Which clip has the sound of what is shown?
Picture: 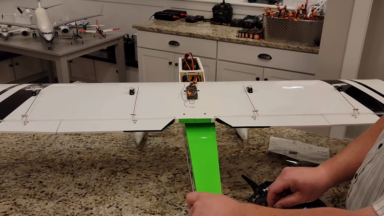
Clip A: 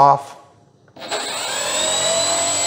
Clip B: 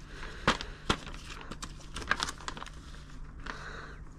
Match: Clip A